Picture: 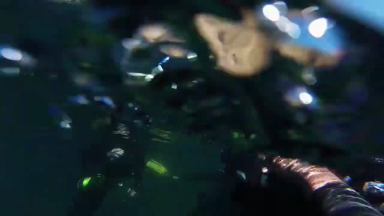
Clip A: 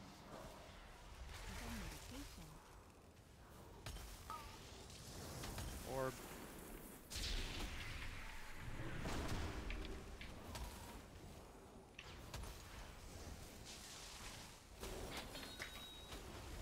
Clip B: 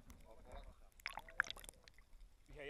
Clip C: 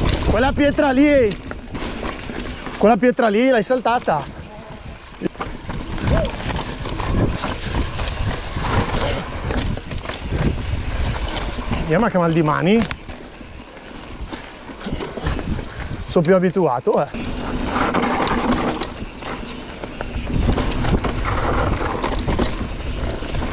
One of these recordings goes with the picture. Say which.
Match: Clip B